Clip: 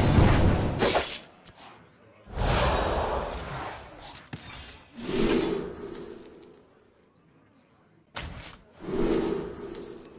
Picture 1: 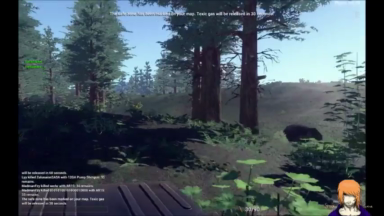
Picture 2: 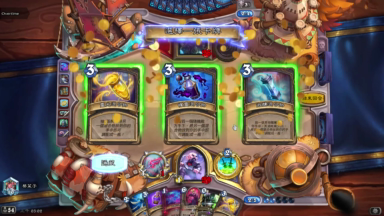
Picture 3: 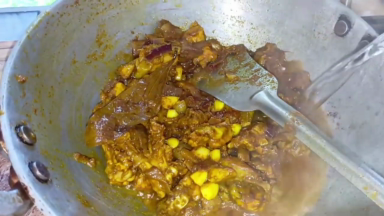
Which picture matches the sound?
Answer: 2